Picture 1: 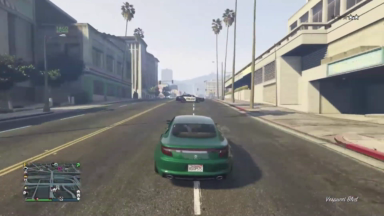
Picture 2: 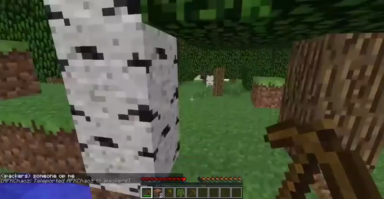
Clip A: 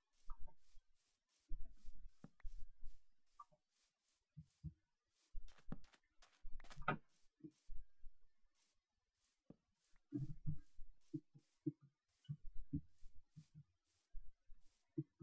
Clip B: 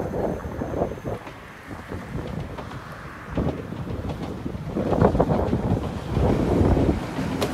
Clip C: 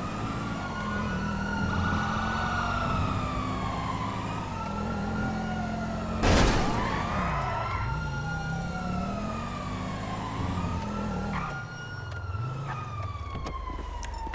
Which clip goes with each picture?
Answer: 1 C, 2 A